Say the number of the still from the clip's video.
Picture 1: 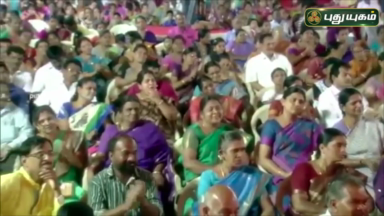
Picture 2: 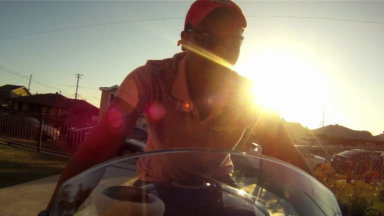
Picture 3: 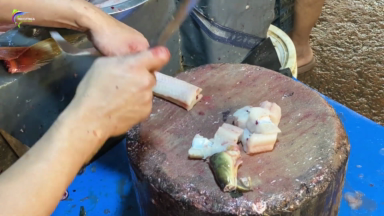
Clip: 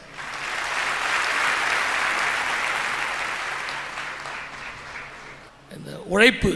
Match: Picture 1